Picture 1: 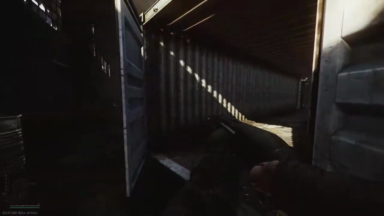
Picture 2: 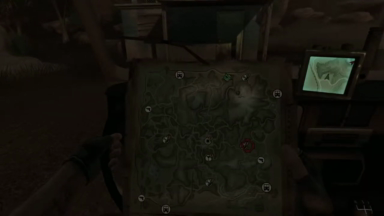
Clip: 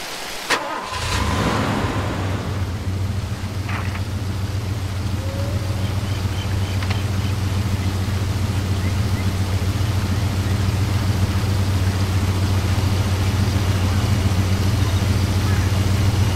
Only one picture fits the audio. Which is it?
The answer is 2